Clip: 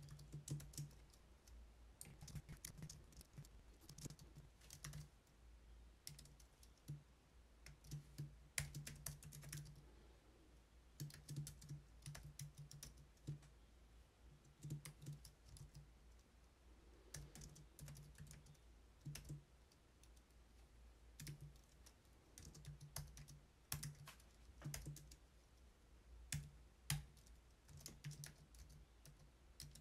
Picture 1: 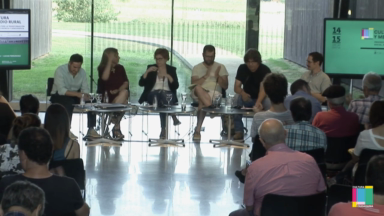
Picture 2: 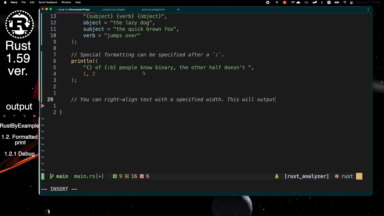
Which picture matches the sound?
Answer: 2